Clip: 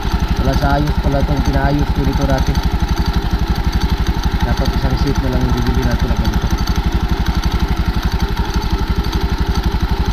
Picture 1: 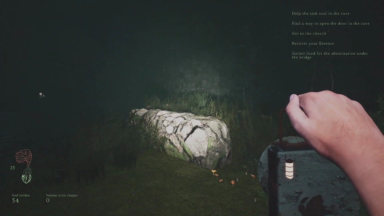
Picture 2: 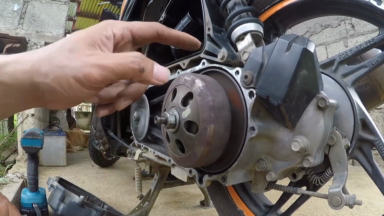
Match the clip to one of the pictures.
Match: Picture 2